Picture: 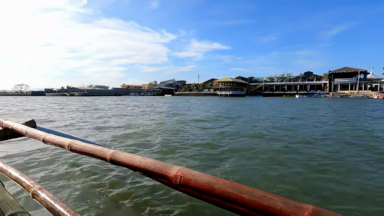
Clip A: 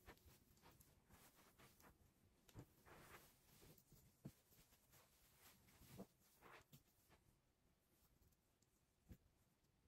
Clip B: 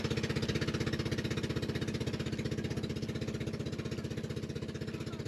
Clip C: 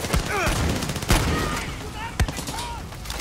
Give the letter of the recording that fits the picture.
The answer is B